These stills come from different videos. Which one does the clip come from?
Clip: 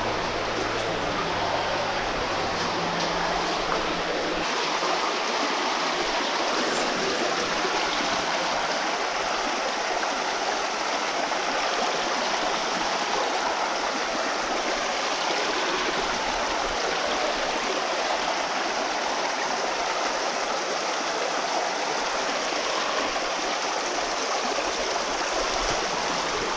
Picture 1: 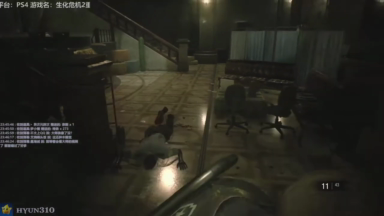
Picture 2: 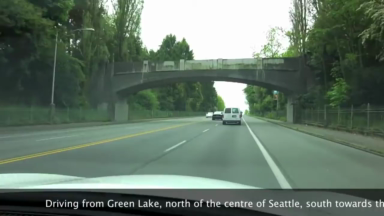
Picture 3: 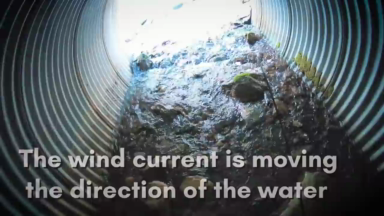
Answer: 3